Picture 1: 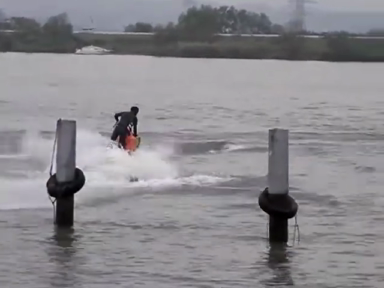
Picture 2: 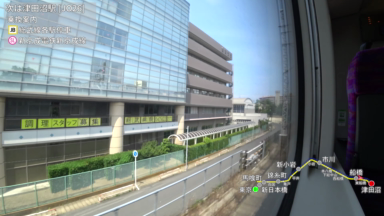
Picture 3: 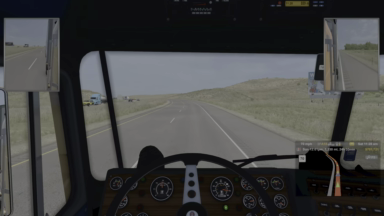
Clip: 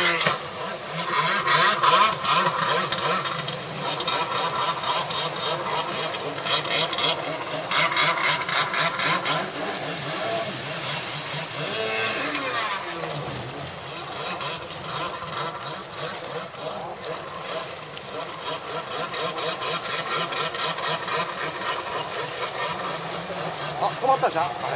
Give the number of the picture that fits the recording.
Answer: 1